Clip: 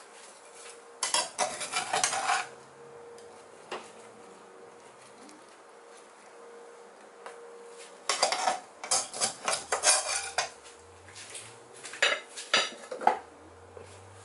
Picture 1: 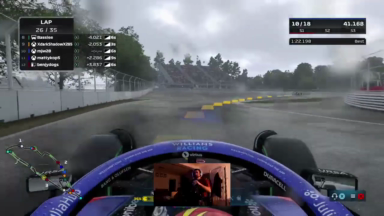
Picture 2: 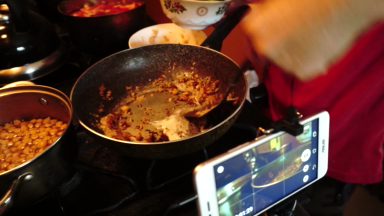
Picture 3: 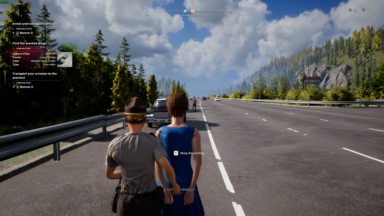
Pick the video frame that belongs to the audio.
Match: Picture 2